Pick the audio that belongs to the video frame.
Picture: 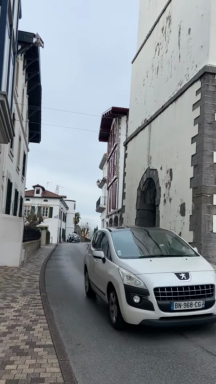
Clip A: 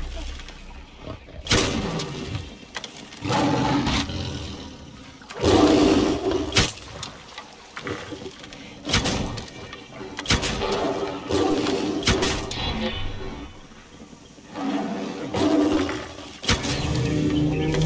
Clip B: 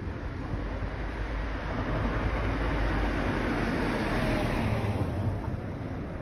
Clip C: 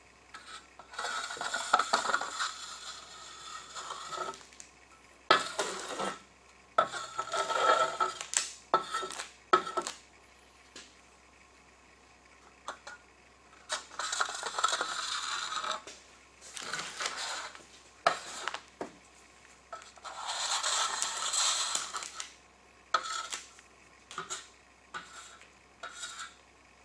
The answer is B